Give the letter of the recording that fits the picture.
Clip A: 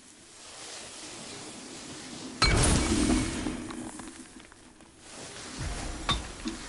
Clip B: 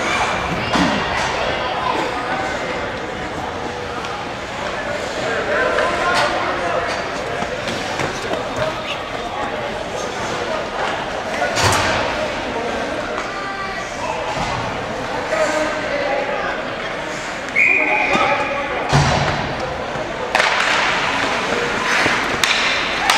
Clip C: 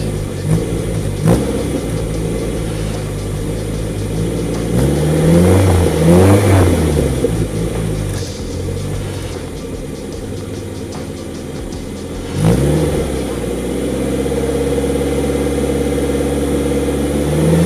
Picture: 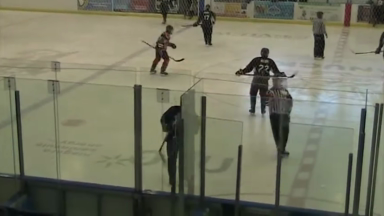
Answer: B